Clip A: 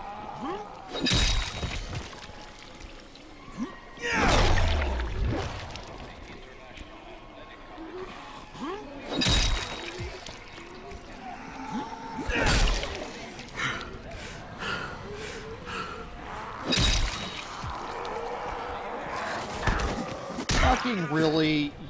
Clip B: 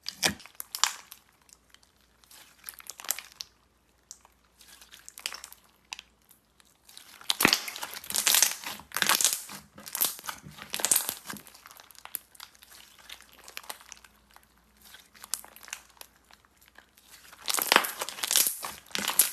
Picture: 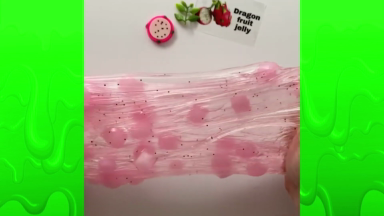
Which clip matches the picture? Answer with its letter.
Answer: B